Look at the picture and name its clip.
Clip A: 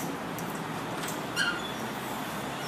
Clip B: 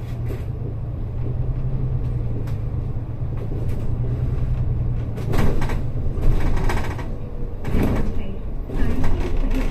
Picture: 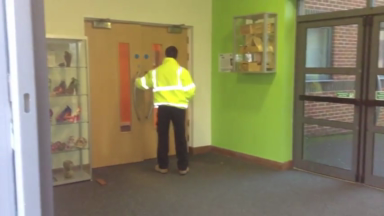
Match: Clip A